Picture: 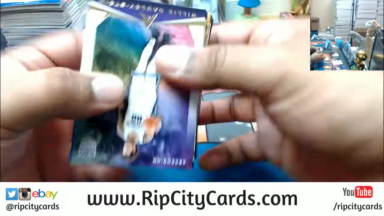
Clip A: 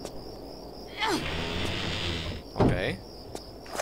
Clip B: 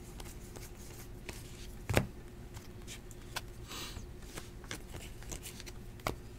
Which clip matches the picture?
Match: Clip B